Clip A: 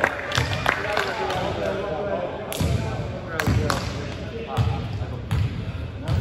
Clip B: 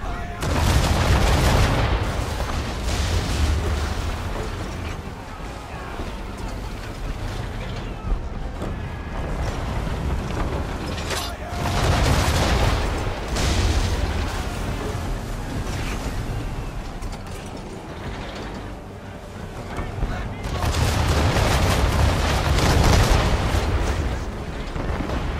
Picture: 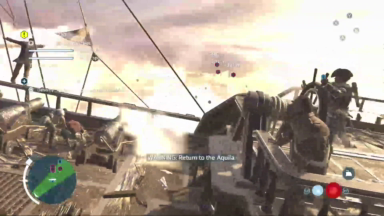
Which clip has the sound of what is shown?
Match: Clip B